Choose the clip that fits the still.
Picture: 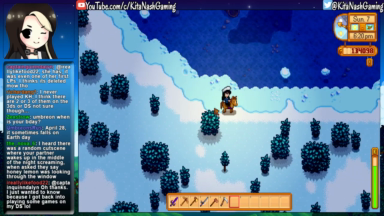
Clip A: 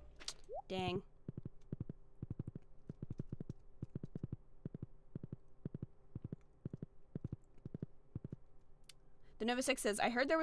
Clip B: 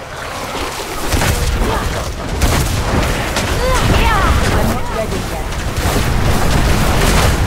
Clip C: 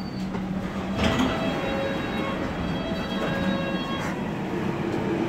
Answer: A